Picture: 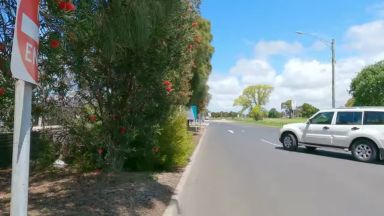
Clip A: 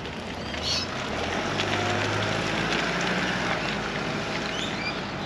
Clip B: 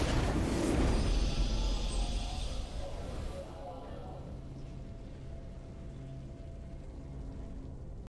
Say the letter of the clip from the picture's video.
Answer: A